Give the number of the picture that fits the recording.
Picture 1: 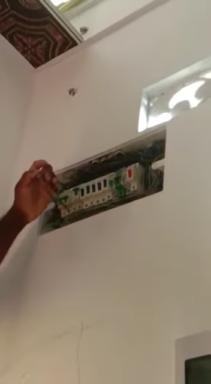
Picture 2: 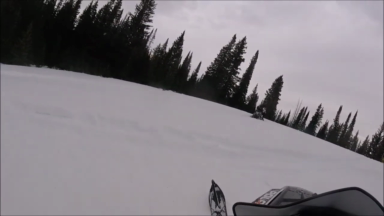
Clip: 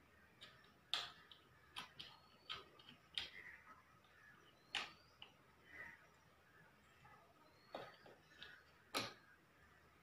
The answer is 1